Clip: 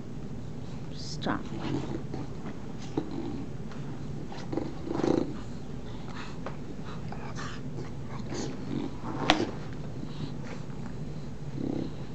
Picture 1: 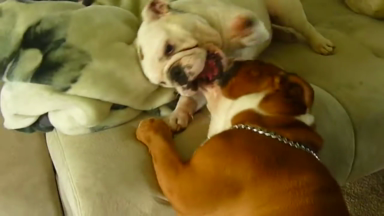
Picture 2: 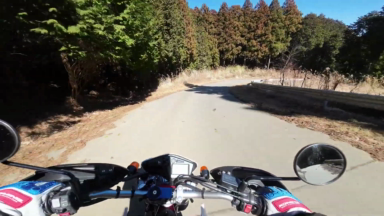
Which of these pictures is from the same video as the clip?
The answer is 1